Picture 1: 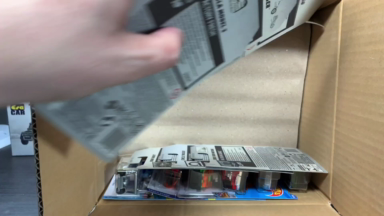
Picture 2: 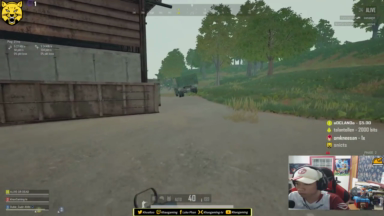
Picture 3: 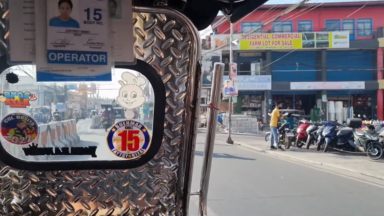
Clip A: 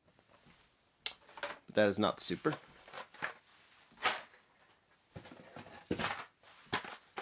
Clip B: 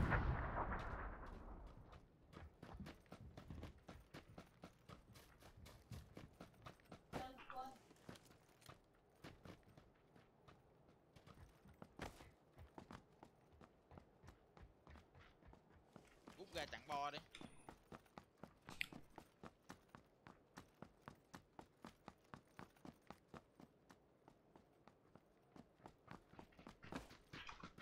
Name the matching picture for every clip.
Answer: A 1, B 2